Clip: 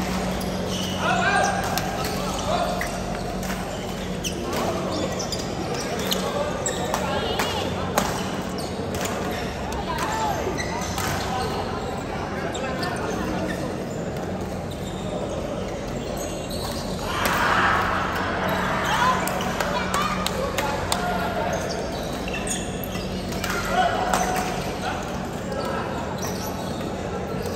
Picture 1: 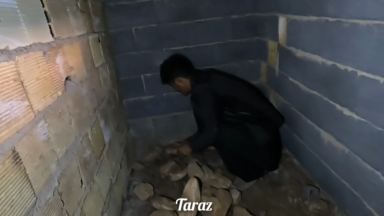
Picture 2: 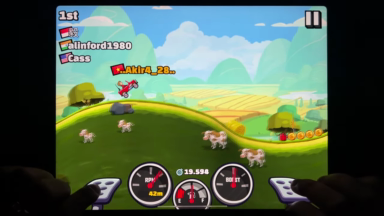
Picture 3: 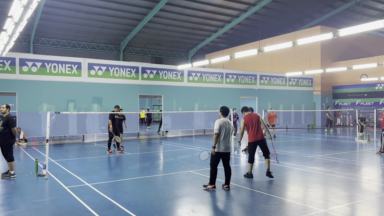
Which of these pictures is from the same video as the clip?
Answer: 3